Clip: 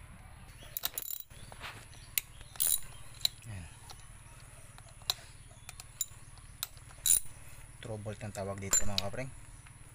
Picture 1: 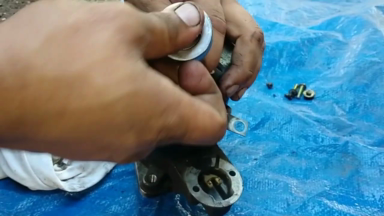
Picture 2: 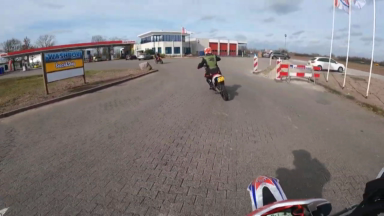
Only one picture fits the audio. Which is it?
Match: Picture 1